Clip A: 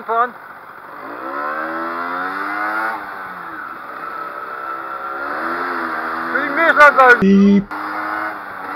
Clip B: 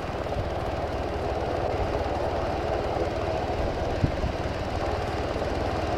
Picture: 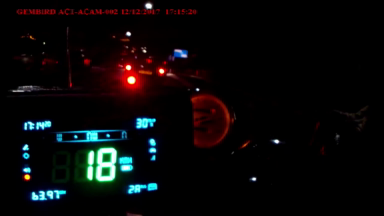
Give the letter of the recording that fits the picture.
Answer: A